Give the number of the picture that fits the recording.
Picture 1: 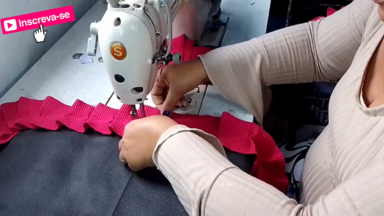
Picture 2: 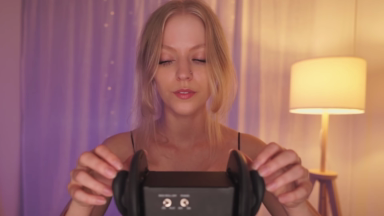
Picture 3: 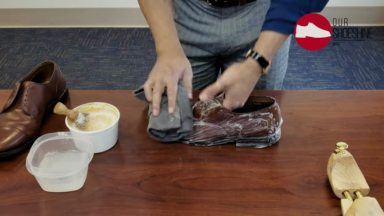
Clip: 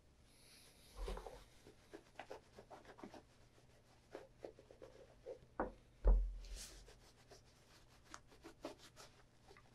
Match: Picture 3